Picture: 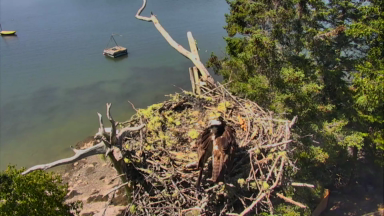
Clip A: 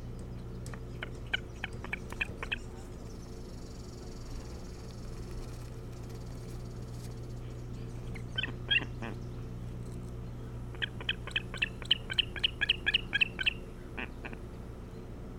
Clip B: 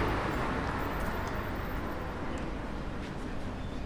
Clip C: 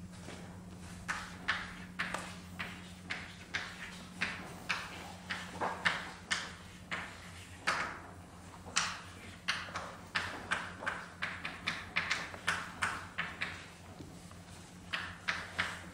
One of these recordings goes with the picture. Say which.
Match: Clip A